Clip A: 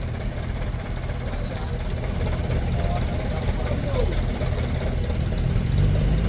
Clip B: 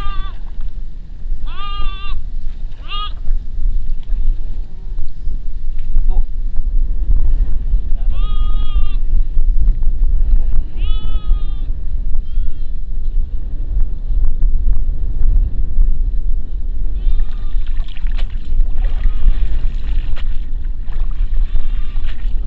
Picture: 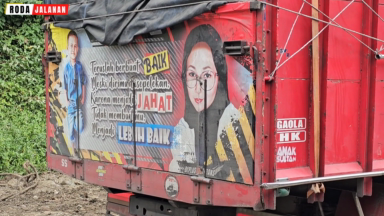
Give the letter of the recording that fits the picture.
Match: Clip A